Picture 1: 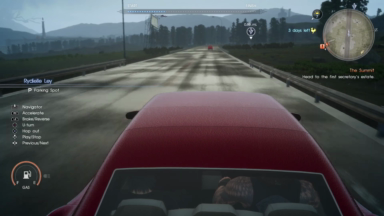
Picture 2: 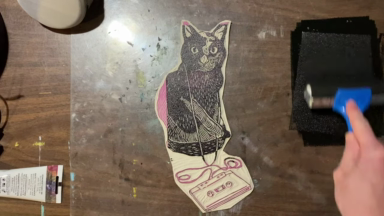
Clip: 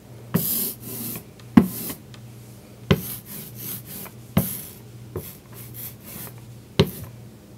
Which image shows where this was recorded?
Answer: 2